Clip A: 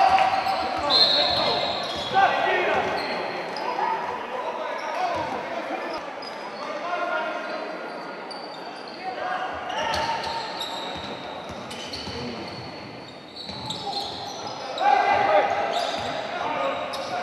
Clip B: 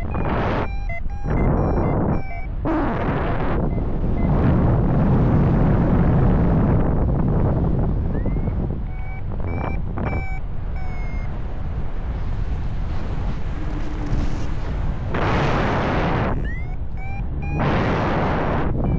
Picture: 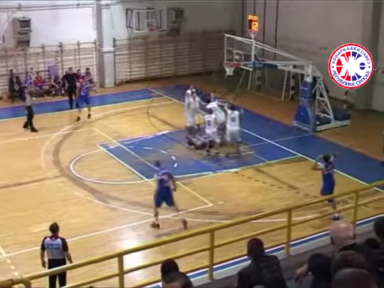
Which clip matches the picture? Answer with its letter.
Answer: A